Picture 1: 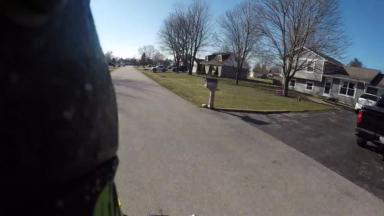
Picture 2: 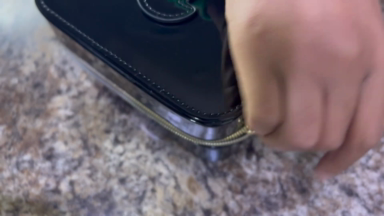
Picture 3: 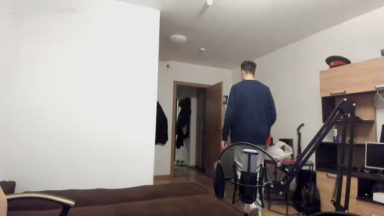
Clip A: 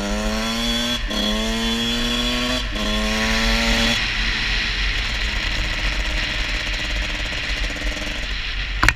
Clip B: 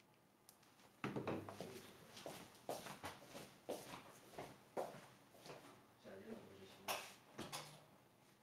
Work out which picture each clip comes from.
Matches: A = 1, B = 3